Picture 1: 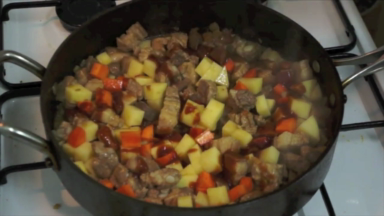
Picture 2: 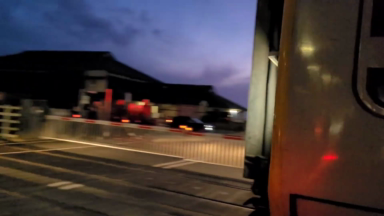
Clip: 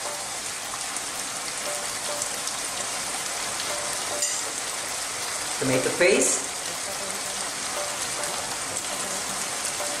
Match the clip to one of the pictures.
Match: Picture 1